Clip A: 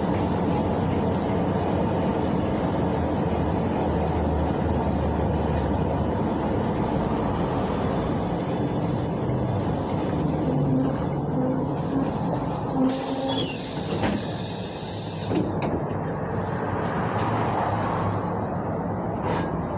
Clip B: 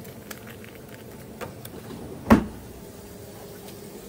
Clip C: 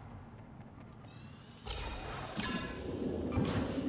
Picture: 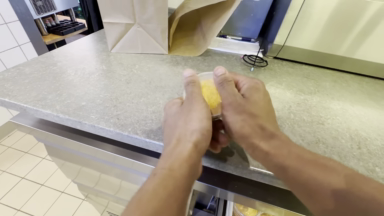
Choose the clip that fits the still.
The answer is B